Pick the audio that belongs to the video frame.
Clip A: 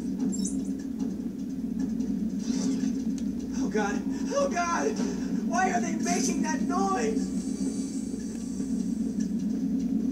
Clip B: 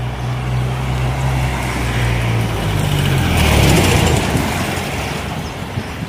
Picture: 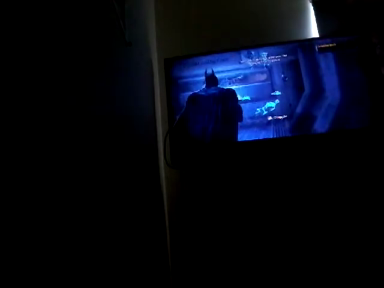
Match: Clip A